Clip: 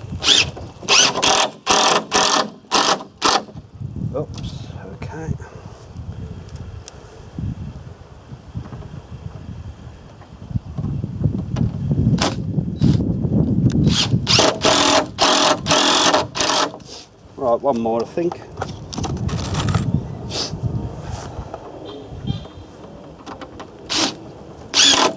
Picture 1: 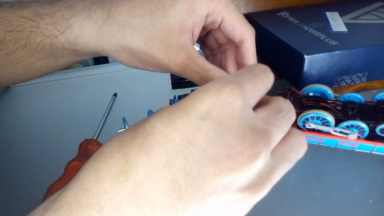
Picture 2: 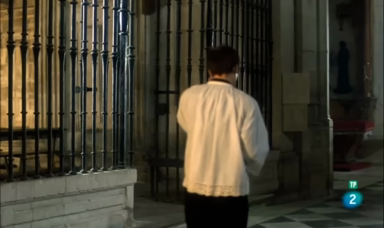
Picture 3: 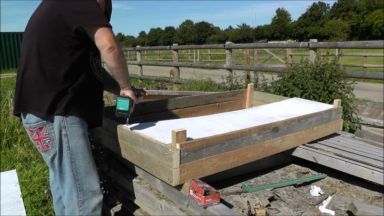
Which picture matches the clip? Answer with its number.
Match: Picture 3